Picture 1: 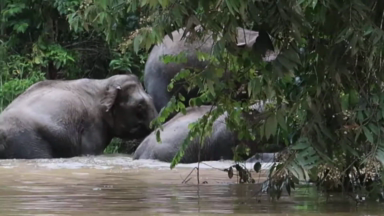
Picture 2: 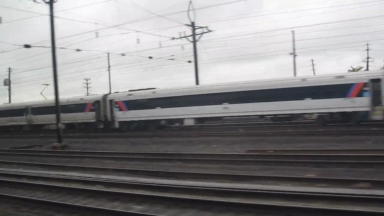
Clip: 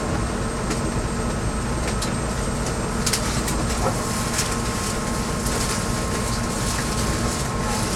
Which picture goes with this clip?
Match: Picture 2